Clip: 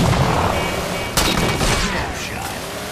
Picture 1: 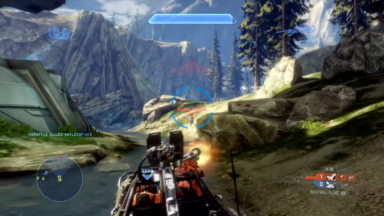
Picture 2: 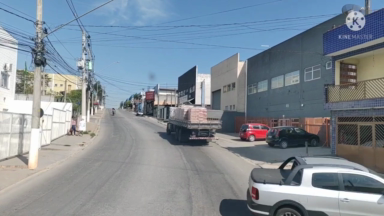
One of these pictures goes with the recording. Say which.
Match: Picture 1